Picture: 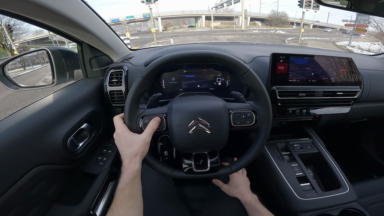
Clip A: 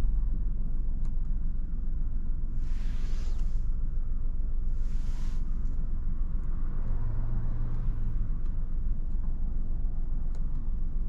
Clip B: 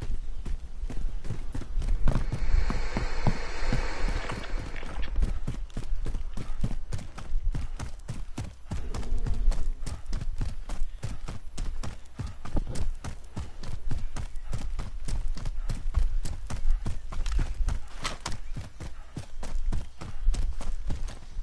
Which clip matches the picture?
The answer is A